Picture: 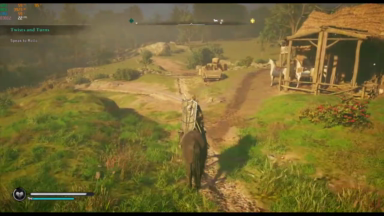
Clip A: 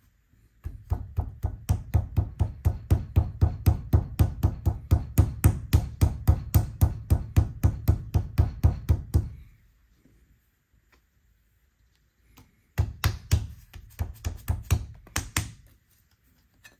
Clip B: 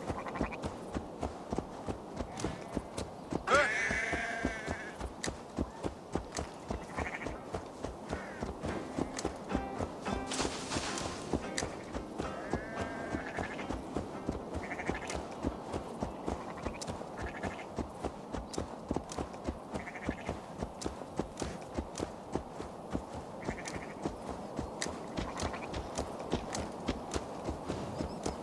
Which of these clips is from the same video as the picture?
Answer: B